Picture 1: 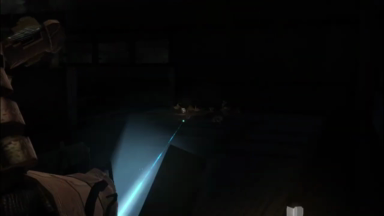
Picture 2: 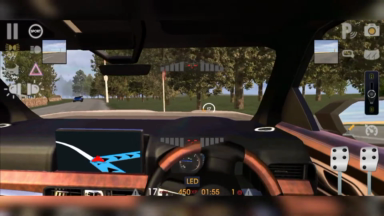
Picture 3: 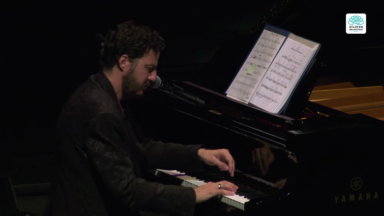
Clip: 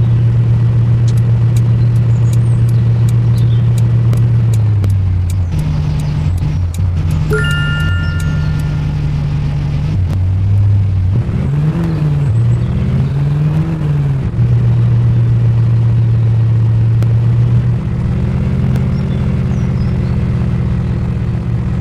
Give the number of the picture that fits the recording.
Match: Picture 2